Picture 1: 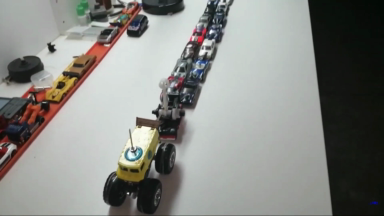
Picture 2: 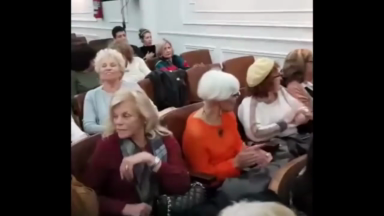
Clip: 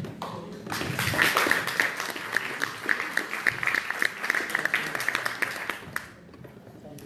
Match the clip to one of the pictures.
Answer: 2